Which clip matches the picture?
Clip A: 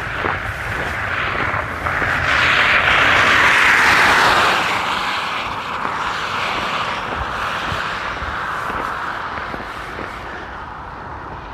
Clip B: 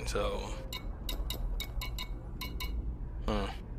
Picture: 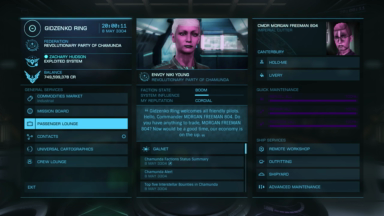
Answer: B